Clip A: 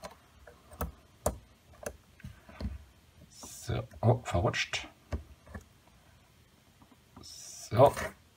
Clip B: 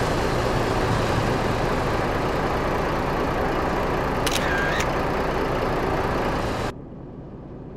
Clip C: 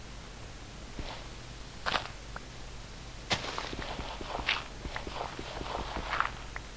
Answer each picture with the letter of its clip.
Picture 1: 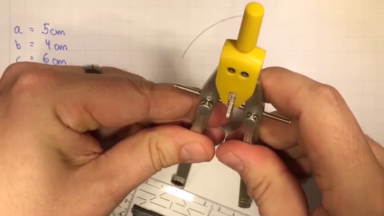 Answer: A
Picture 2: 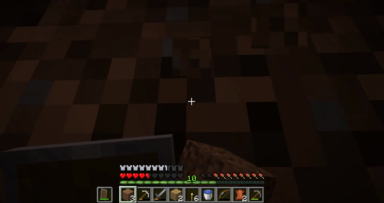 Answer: C